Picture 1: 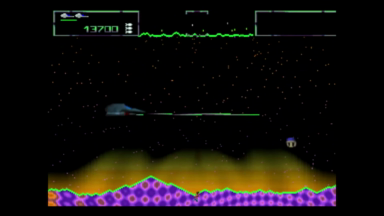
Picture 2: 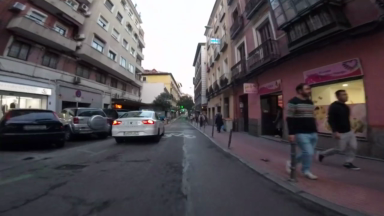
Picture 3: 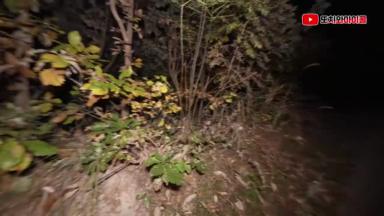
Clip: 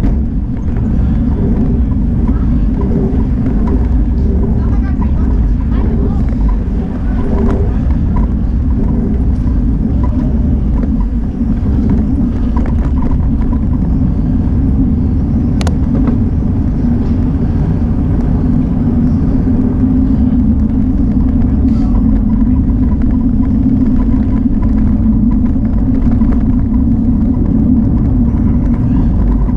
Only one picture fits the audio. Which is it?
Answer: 2